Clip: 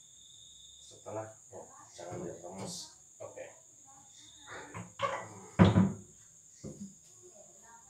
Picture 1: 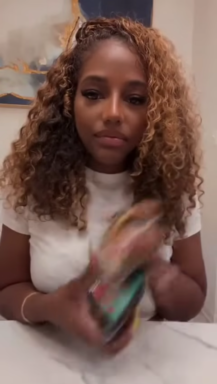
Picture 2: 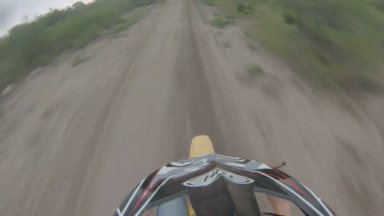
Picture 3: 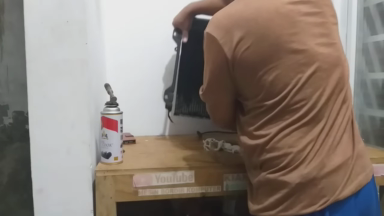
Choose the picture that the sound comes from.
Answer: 3